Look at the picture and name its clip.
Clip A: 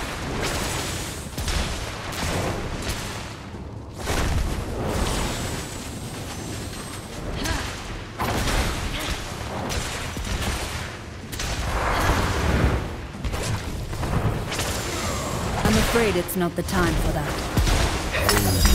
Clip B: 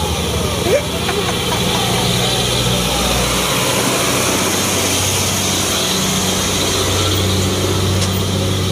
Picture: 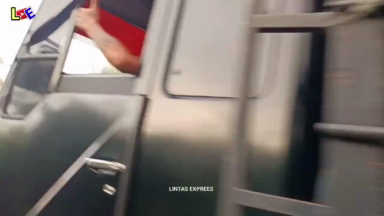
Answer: B